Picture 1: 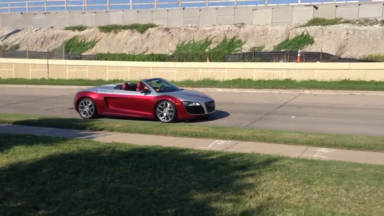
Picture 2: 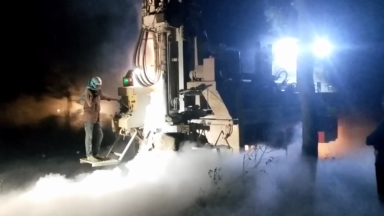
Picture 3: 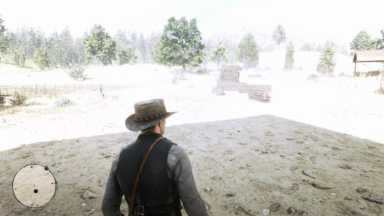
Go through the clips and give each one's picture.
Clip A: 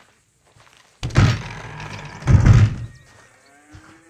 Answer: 3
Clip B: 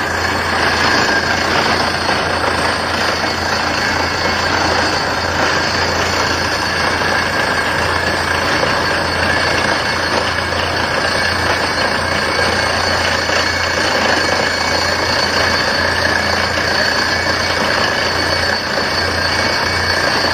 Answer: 2